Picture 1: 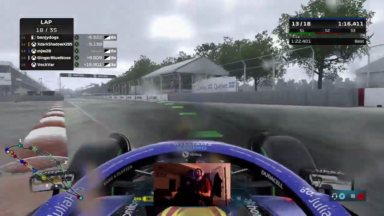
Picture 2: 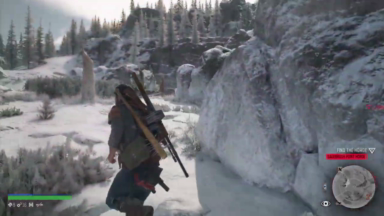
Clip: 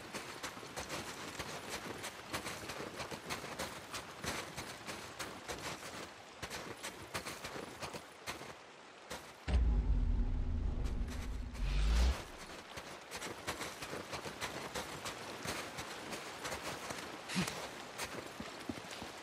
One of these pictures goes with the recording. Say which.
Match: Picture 2